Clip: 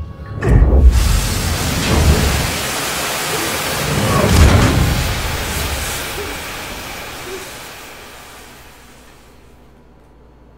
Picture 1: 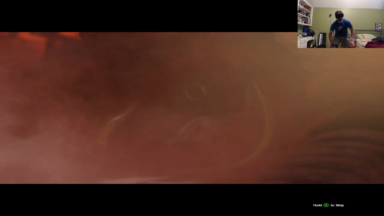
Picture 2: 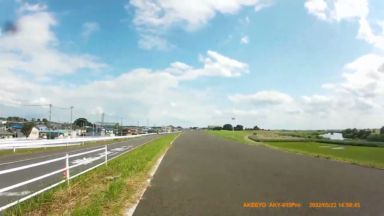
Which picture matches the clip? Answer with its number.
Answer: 1